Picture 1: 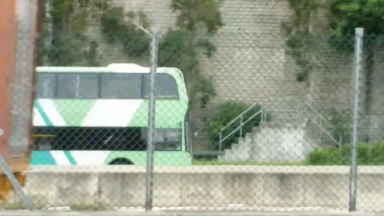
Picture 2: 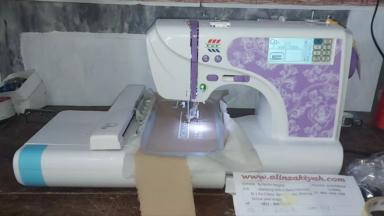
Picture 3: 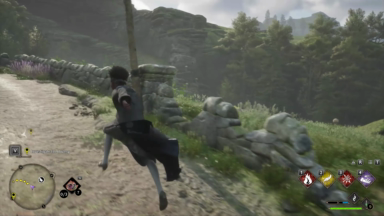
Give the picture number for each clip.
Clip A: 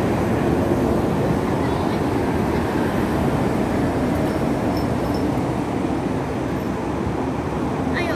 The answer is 1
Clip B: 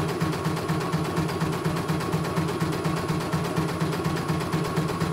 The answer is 2